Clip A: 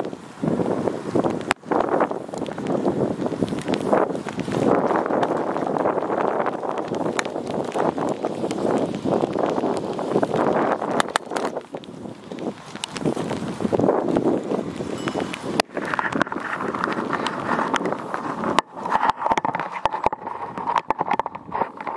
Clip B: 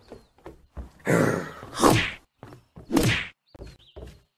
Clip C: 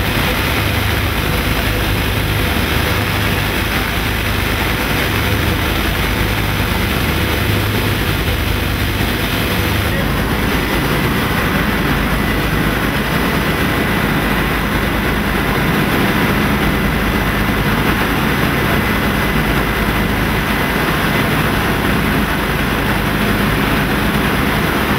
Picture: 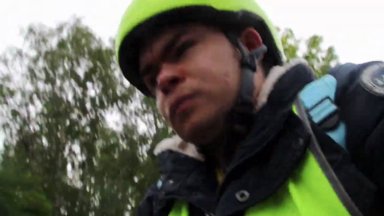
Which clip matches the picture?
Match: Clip A